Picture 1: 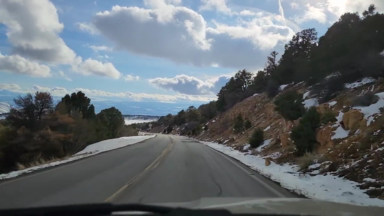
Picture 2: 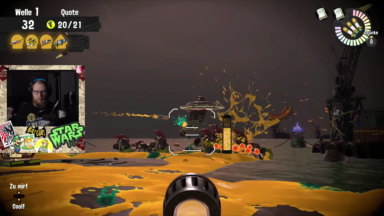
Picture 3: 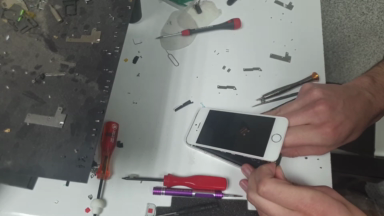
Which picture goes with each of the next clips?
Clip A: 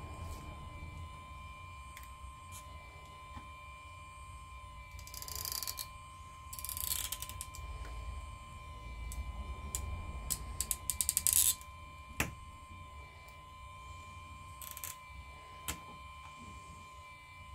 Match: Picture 3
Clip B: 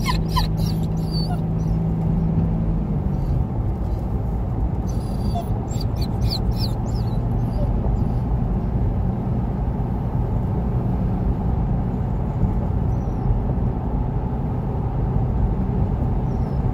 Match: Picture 1